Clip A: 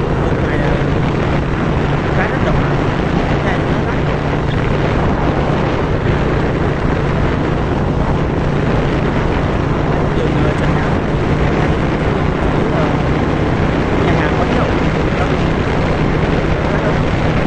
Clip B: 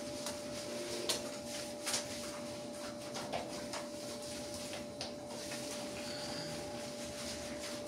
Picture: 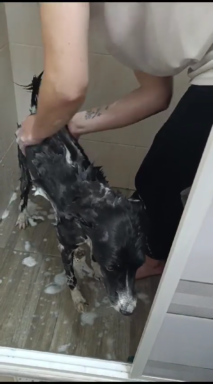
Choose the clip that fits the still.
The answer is B